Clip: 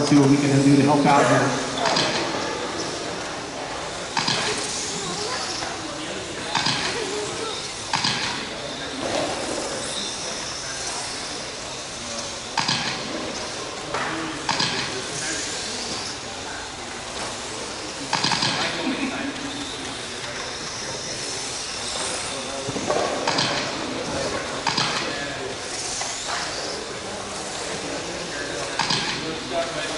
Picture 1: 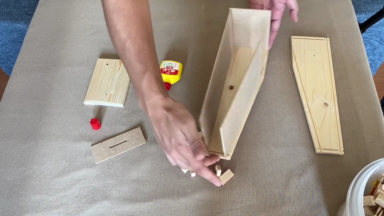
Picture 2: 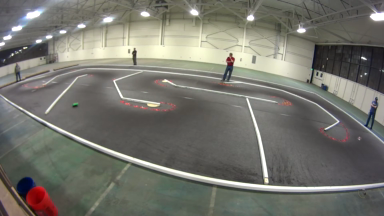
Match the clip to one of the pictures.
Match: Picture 2